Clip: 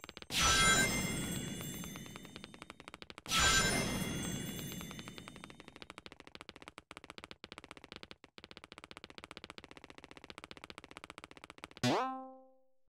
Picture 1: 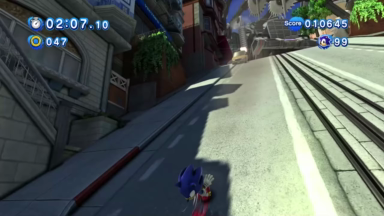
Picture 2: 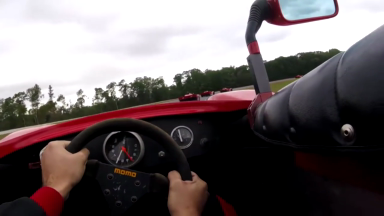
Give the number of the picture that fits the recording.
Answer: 1